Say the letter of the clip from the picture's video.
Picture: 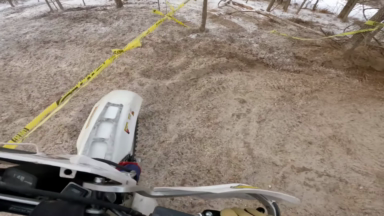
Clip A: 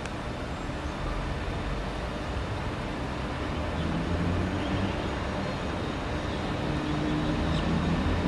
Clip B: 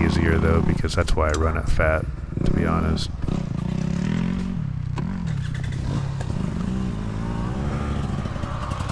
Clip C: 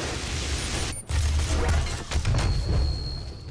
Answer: B